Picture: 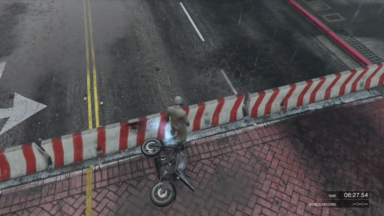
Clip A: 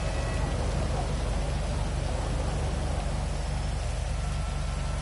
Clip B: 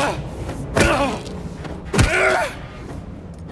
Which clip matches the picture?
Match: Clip A